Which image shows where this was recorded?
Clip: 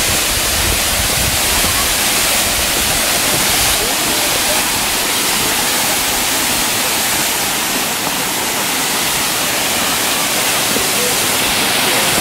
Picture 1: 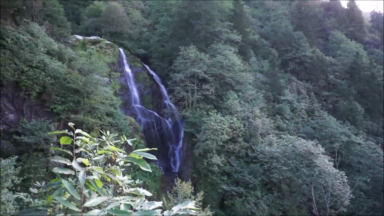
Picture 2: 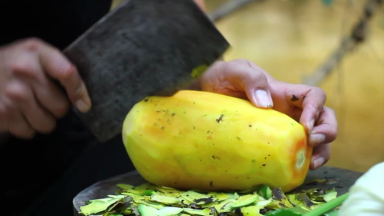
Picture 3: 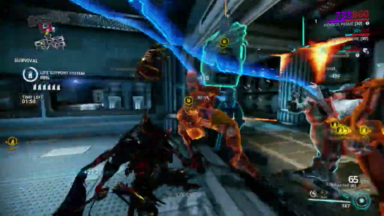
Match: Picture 1